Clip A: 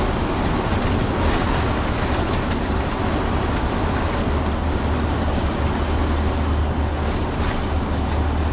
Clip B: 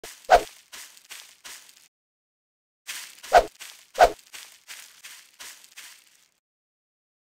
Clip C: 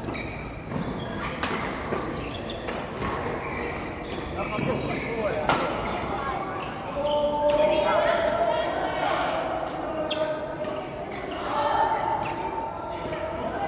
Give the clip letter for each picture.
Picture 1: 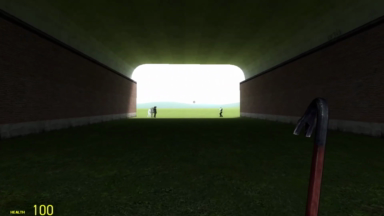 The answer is B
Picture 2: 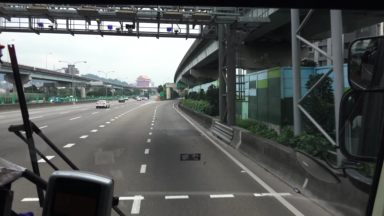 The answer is A